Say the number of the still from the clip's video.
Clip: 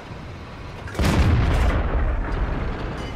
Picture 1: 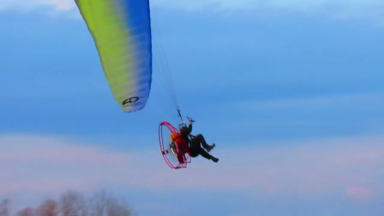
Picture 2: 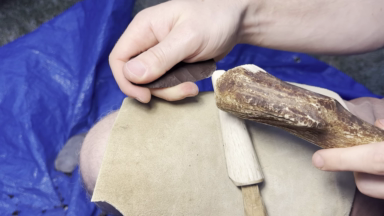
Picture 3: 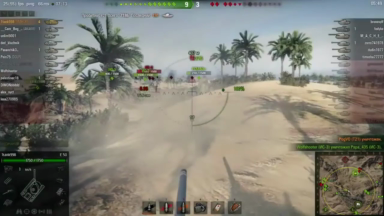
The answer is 3